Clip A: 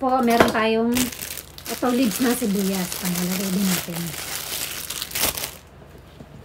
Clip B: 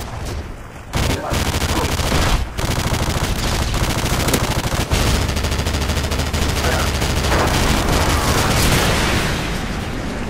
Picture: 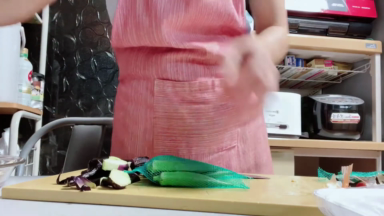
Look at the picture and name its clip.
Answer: A